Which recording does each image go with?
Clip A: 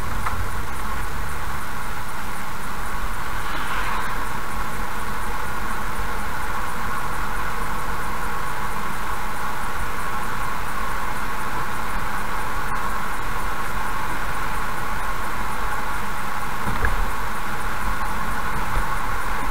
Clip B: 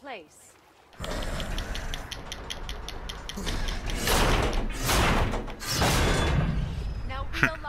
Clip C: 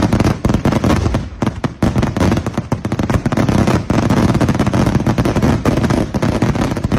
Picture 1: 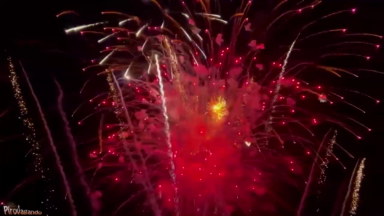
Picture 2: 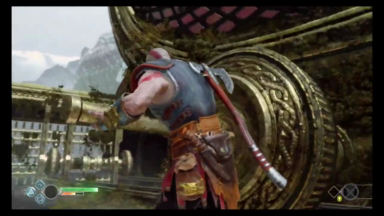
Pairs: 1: C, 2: B